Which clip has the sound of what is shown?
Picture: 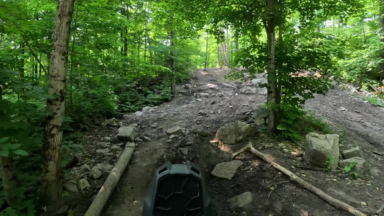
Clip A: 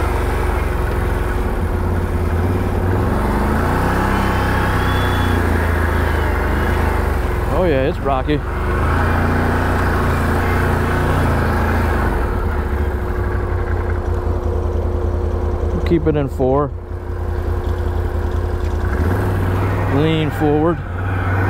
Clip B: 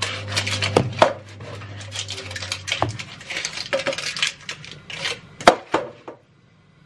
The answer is A